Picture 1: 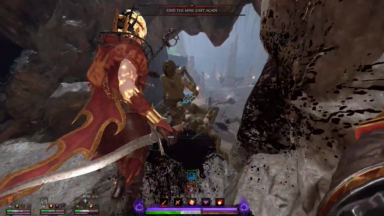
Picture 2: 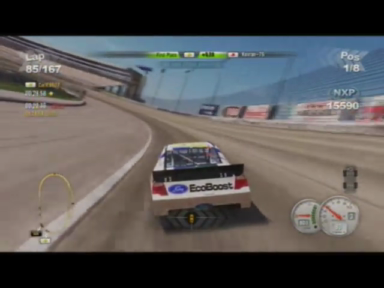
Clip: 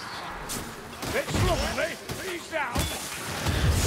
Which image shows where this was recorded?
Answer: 1